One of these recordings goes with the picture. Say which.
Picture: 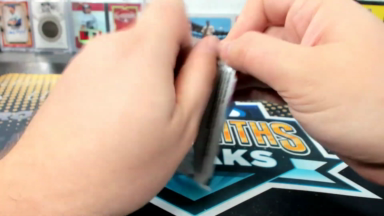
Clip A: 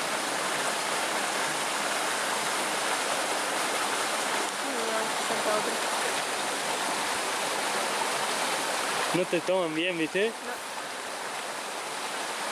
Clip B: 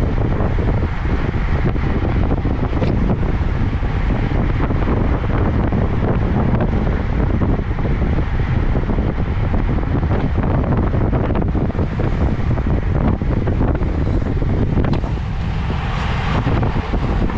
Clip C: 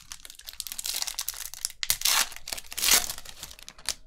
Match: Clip C